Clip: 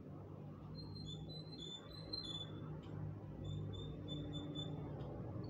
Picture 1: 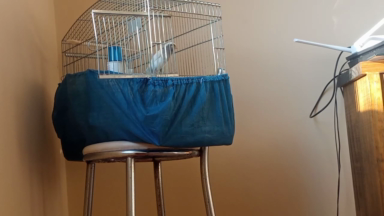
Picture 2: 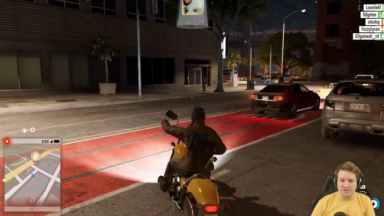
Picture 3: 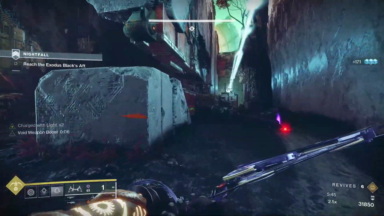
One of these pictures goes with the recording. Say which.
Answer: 1